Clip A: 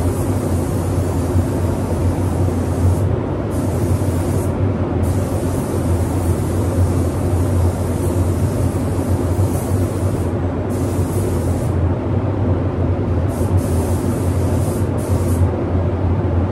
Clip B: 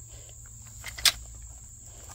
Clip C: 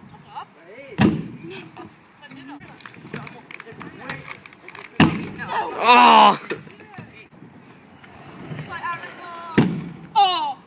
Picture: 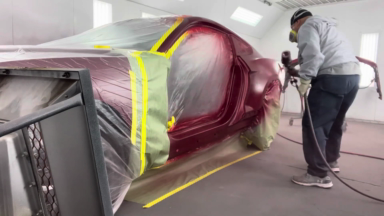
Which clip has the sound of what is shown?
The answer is A